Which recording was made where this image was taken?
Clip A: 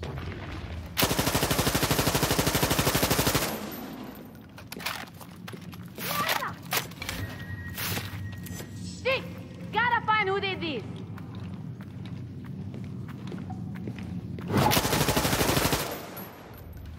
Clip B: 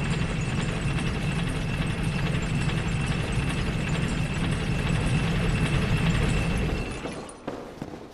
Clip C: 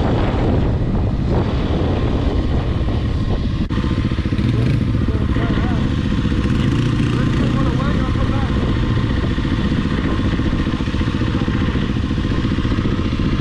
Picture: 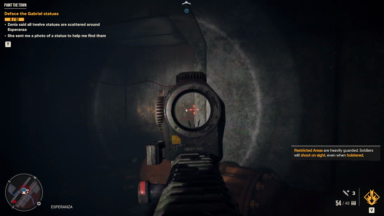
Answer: A